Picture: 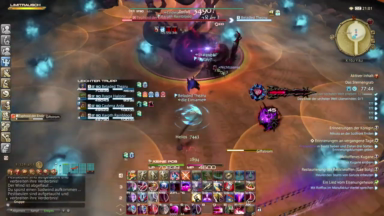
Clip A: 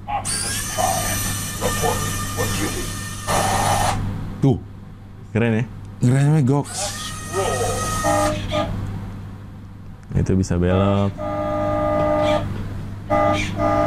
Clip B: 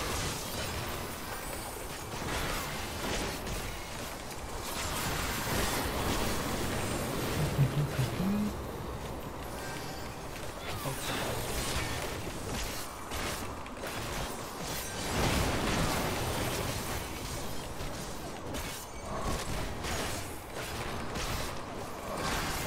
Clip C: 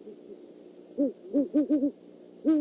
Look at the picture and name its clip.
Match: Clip B